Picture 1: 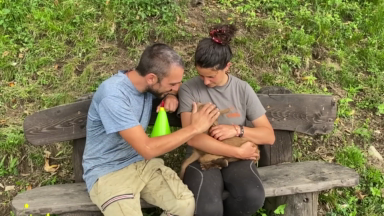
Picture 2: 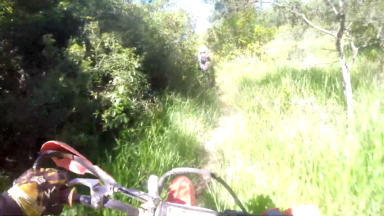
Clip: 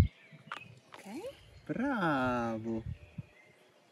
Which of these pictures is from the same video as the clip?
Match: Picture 1